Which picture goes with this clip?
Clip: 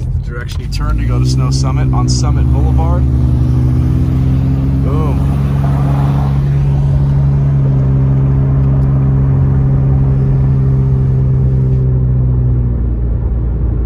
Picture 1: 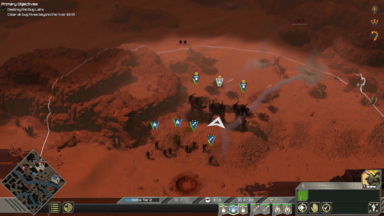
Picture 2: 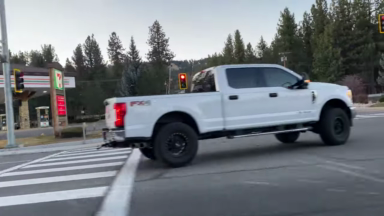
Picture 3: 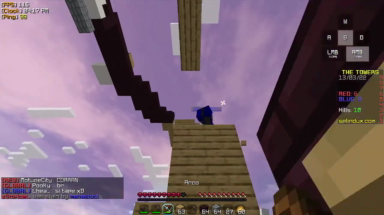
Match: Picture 2